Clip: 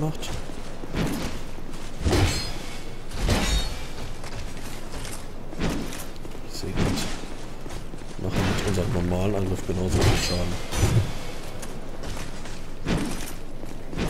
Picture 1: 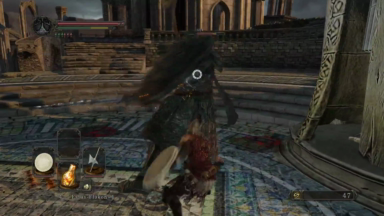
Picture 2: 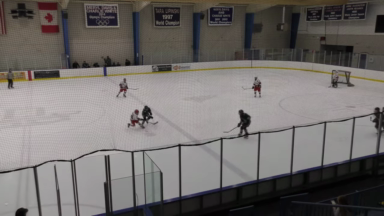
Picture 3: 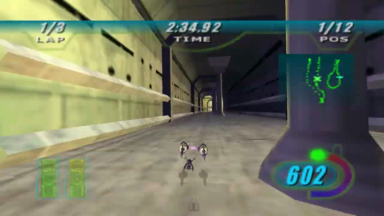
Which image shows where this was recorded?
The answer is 1